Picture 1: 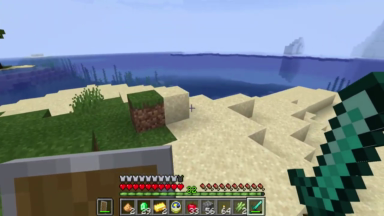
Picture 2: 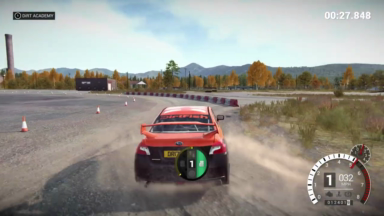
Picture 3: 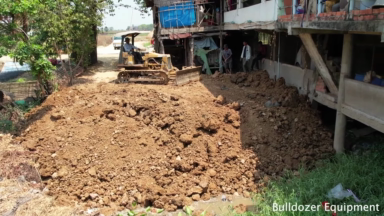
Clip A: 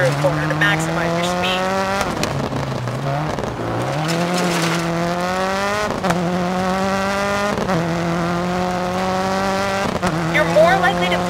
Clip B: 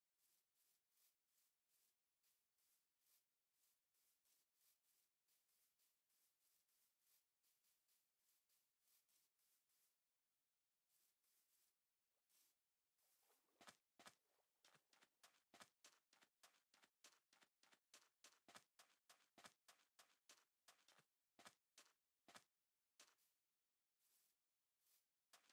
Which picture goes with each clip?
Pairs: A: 2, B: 1